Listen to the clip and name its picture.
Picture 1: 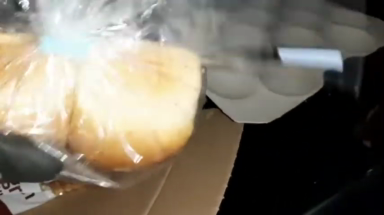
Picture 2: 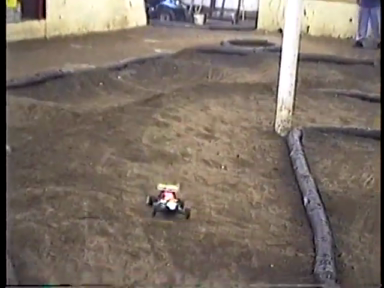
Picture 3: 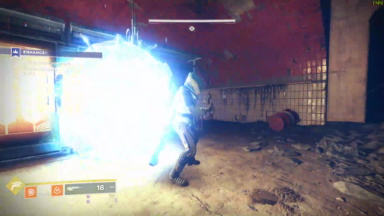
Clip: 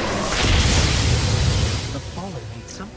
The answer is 3